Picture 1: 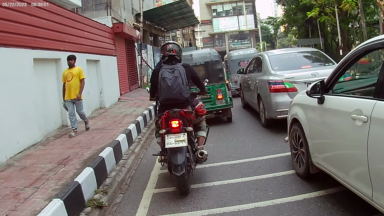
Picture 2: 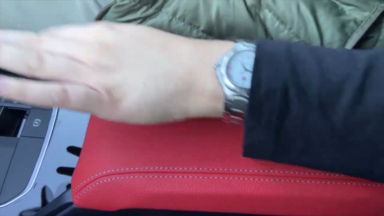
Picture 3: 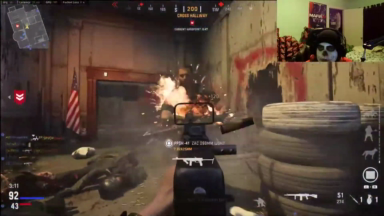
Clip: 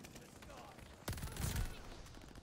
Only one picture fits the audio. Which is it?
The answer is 3